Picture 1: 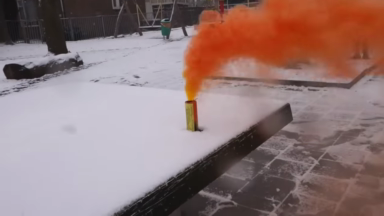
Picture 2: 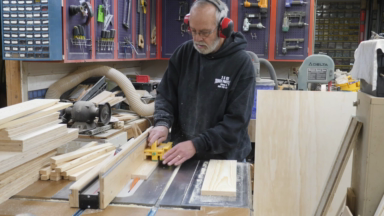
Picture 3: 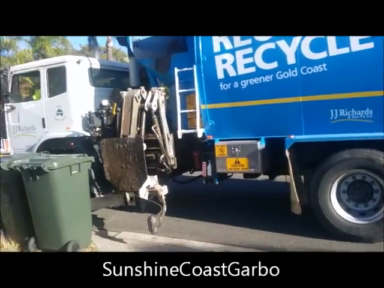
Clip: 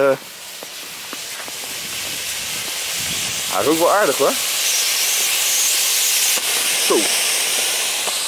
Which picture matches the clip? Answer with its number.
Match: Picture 1